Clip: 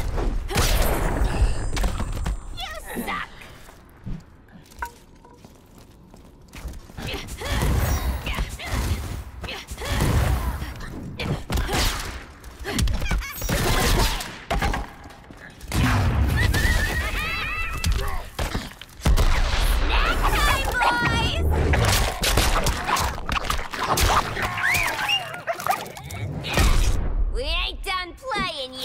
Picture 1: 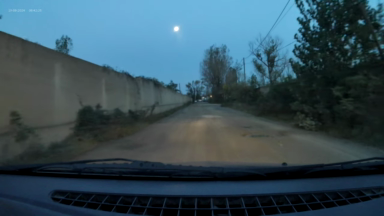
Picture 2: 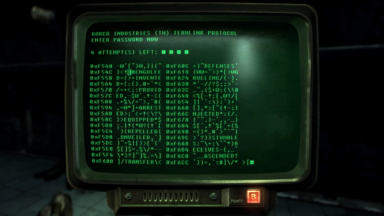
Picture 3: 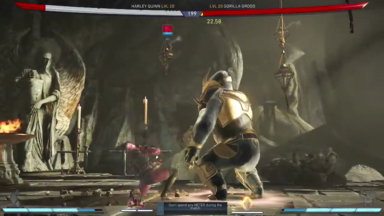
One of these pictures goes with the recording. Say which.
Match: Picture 3